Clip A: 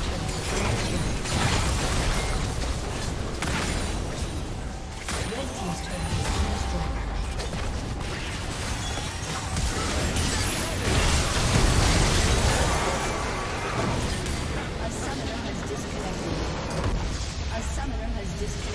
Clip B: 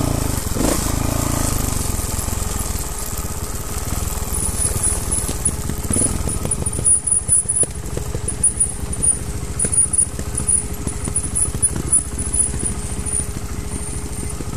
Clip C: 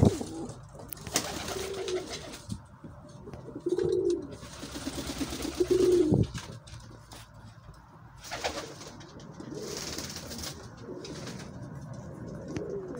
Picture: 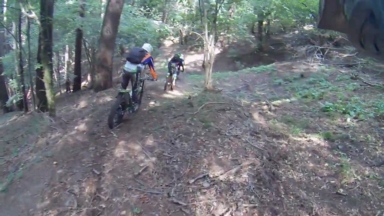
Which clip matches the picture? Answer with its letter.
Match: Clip B